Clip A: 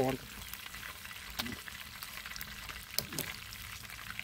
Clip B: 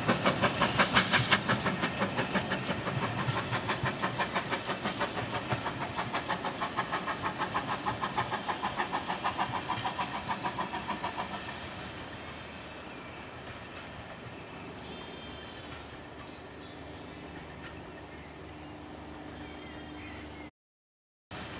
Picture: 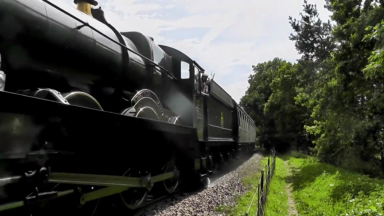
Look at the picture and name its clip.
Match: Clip B